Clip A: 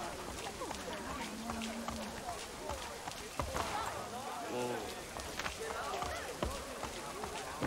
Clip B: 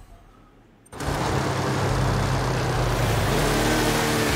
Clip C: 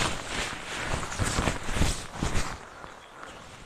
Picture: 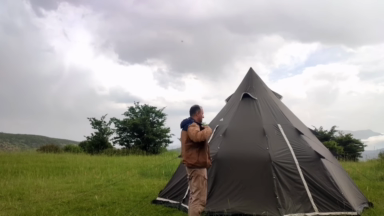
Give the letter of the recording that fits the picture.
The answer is C